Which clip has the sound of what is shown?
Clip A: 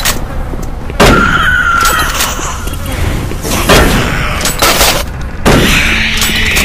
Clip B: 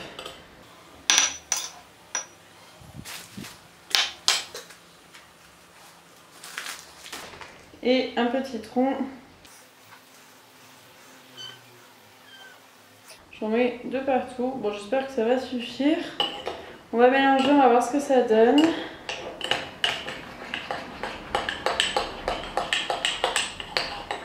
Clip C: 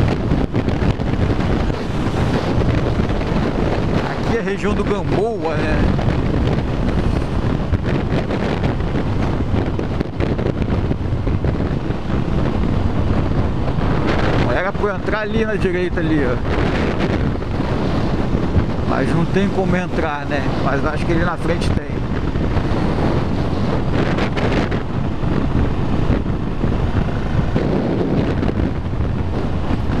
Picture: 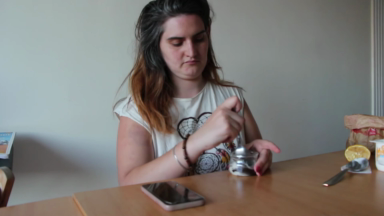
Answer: B